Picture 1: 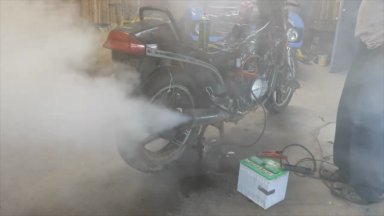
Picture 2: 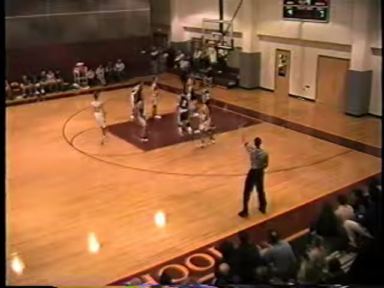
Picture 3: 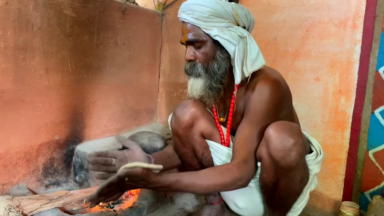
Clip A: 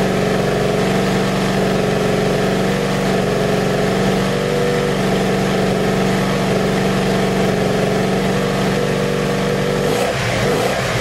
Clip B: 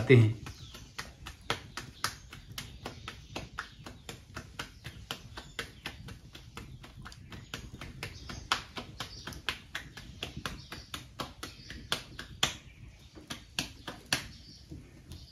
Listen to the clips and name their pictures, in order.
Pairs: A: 1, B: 3